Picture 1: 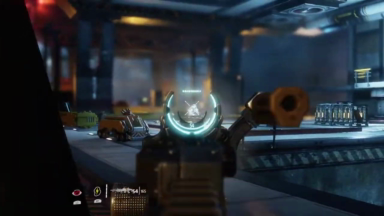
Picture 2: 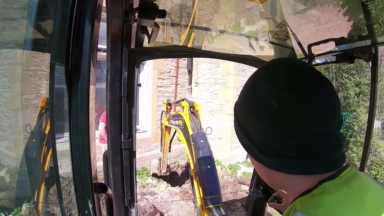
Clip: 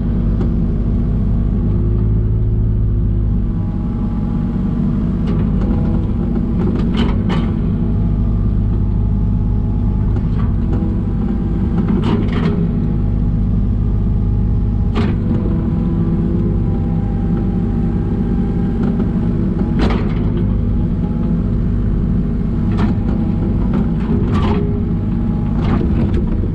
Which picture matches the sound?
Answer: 2